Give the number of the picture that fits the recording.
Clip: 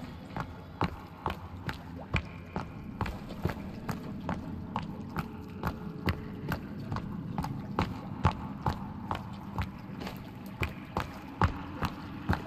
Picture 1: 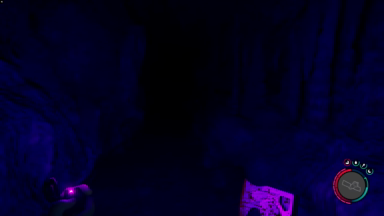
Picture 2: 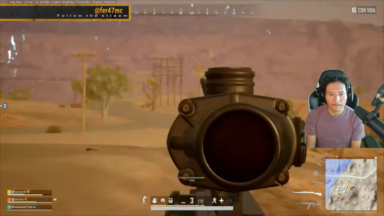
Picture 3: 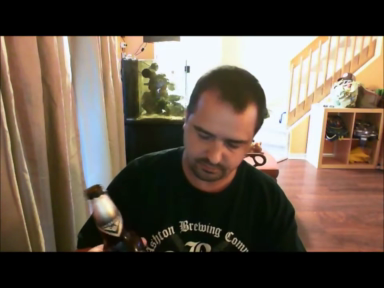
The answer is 1